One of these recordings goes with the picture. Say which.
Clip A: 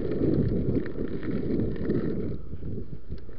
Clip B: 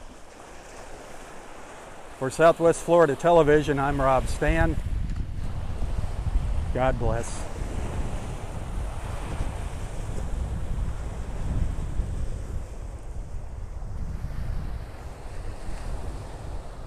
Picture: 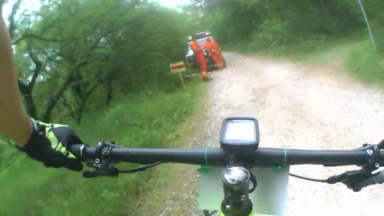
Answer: A